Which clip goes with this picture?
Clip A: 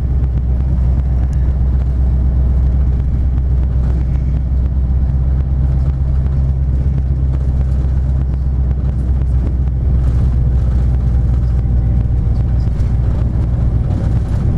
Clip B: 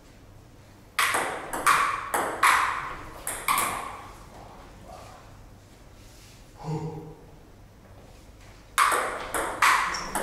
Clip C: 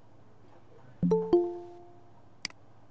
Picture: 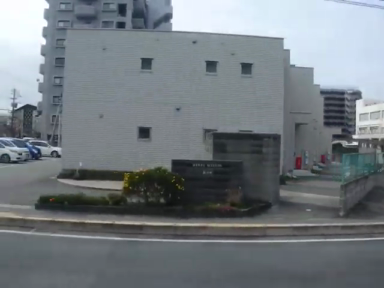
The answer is A